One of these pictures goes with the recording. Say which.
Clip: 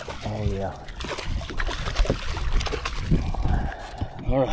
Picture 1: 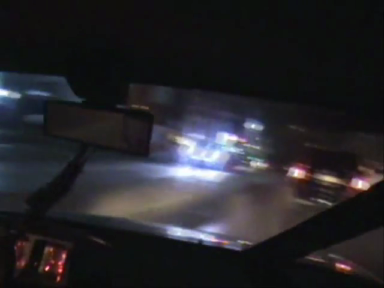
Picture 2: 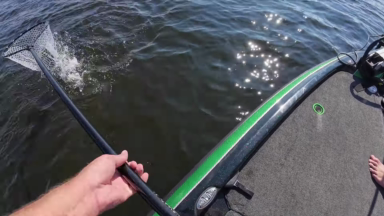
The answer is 2